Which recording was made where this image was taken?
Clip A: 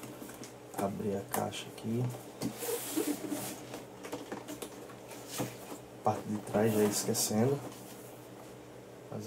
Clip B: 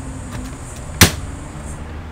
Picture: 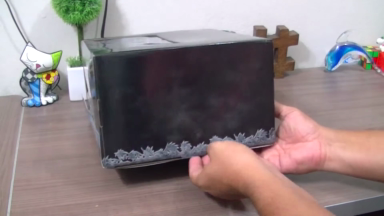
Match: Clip A